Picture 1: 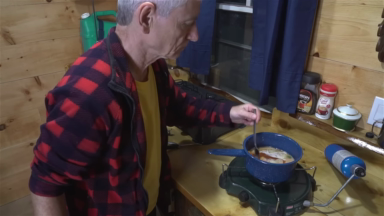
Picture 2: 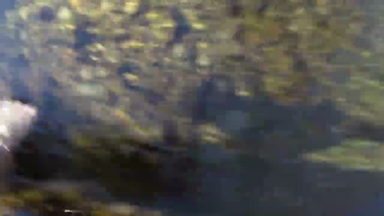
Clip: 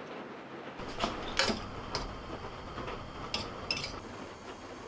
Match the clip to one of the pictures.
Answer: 1